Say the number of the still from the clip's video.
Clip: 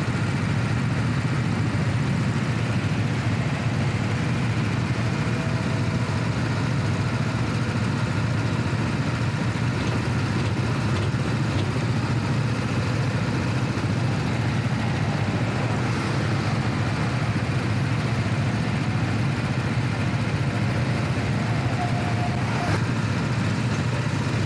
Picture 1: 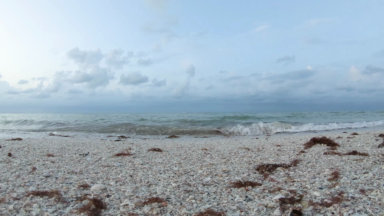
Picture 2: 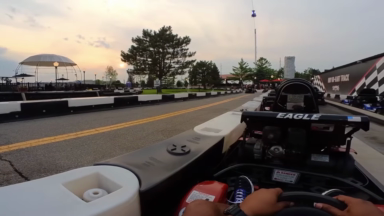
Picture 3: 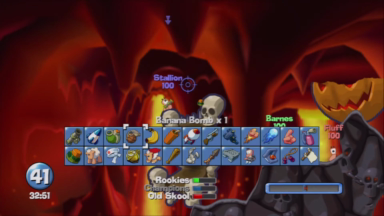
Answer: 2